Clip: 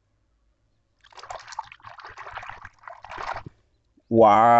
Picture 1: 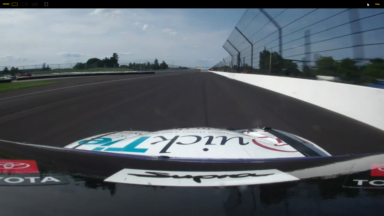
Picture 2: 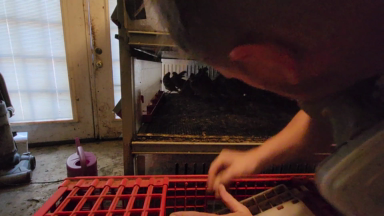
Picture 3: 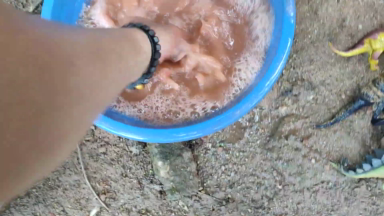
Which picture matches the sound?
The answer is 3